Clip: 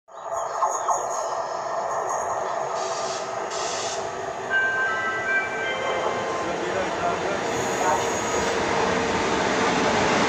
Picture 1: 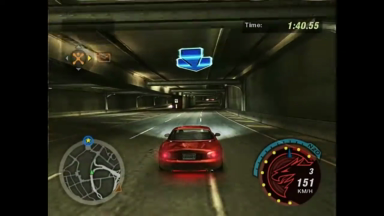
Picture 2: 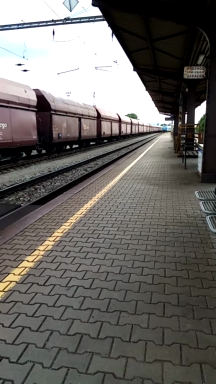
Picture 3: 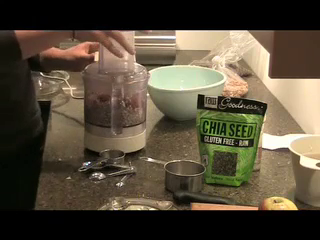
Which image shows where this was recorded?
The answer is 2